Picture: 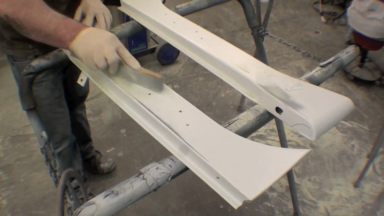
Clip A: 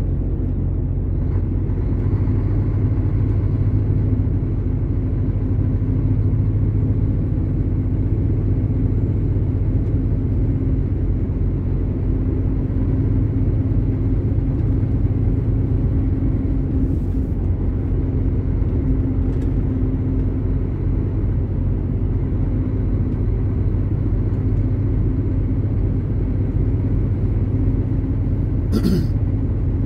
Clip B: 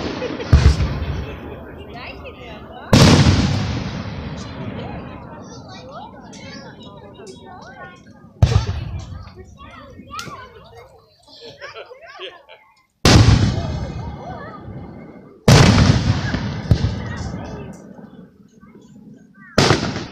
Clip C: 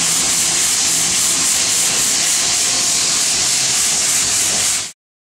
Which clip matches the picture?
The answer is C